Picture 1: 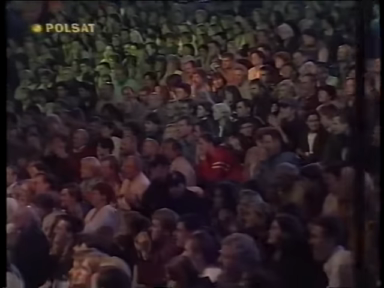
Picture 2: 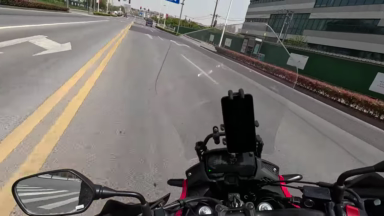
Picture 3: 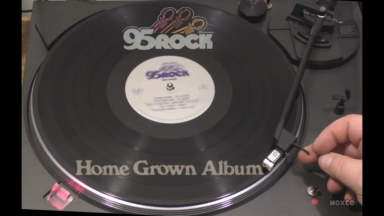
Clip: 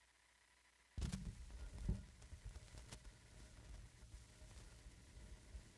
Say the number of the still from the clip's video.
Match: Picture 3